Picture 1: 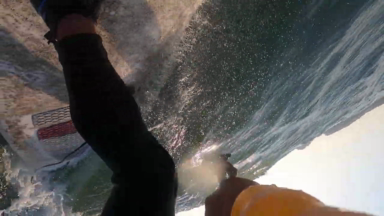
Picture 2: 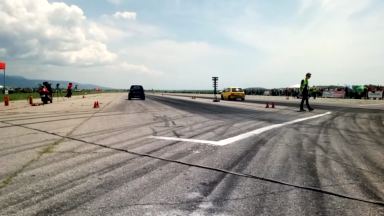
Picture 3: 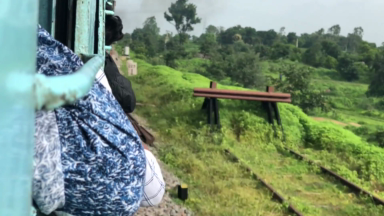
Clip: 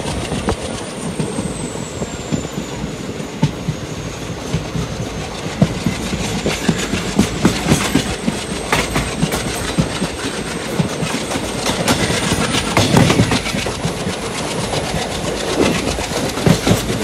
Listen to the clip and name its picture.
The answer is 3